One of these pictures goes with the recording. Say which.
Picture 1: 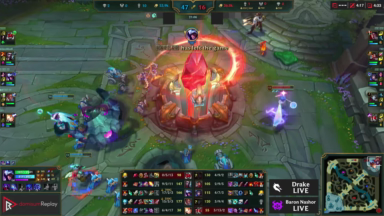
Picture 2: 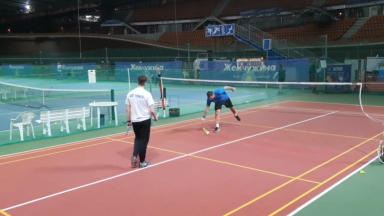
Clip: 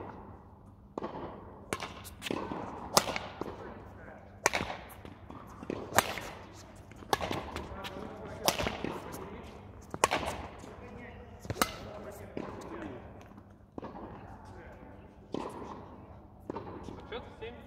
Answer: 2